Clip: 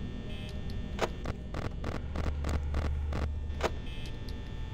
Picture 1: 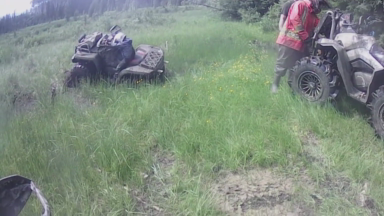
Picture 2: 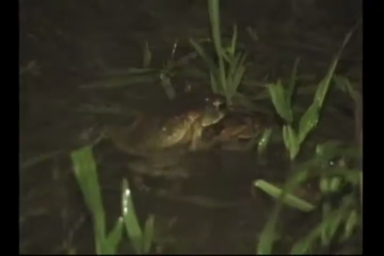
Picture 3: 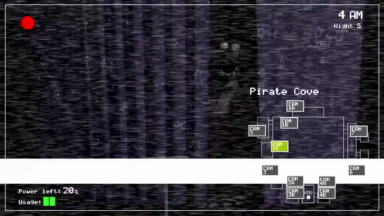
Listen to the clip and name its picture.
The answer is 3